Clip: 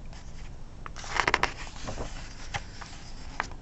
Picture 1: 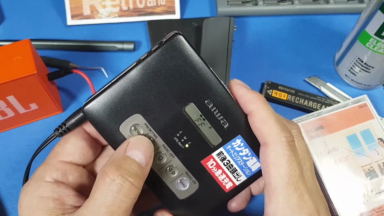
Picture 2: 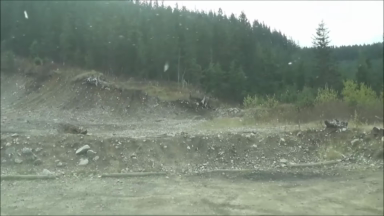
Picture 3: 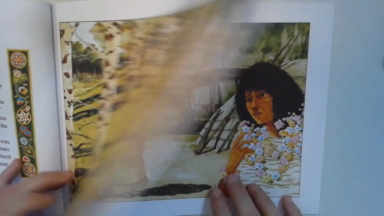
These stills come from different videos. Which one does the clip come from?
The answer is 3